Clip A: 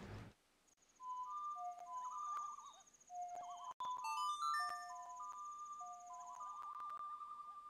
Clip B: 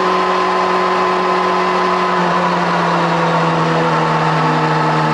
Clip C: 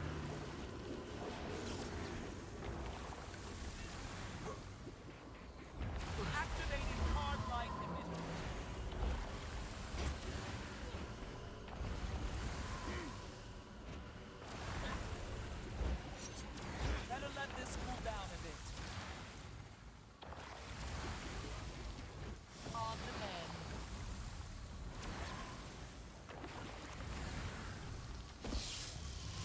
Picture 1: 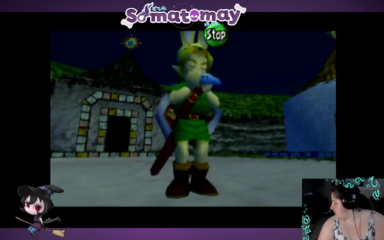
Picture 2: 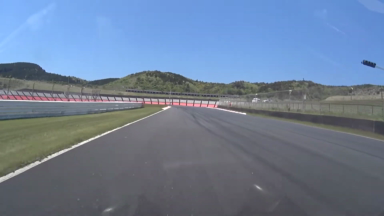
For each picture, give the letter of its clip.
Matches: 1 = A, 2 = B